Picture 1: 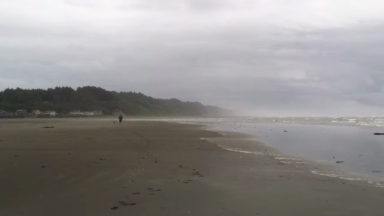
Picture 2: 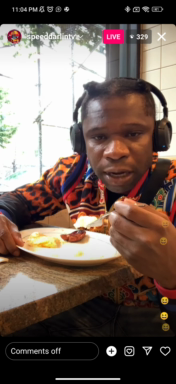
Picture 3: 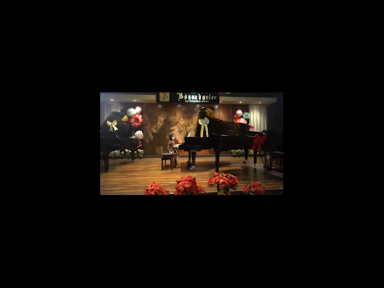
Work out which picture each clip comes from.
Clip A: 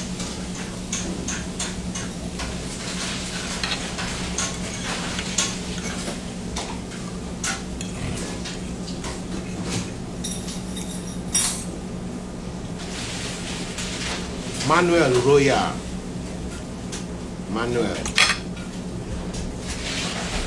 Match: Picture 2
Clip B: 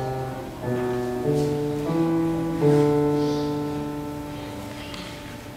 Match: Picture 3